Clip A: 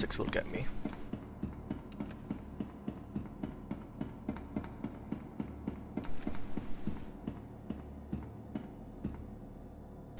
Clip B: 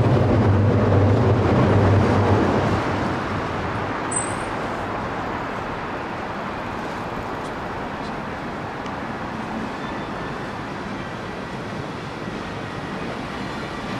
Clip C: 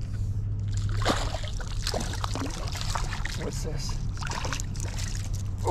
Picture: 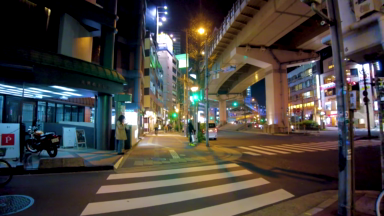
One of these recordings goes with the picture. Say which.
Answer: B